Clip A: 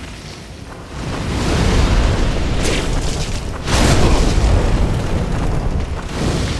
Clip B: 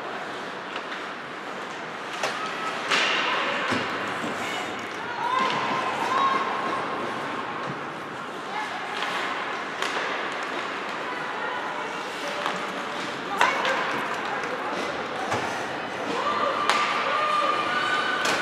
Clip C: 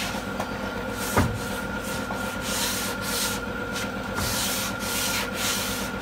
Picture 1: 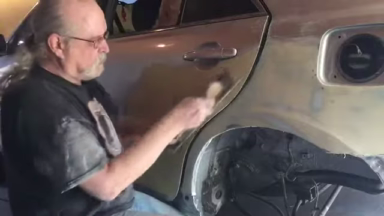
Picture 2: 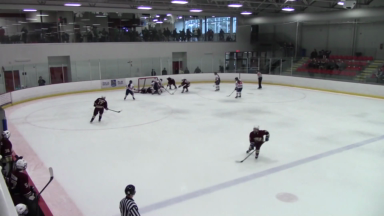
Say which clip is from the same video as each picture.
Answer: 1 C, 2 B